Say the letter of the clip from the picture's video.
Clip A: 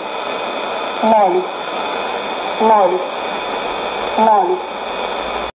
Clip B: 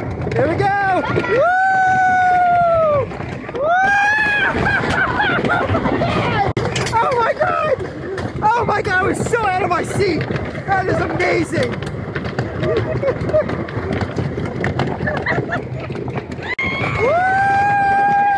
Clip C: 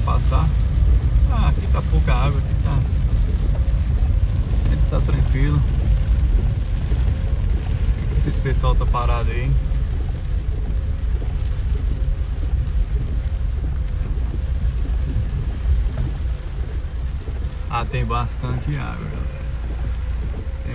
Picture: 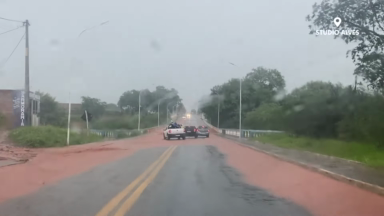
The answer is C